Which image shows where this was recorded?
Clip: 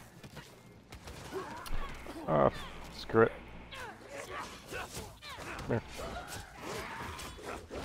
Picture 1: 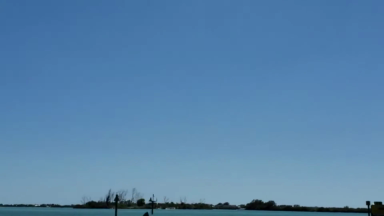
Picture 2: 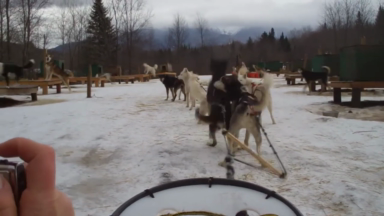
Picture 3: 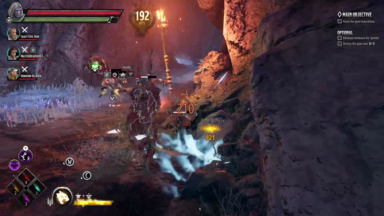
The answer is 3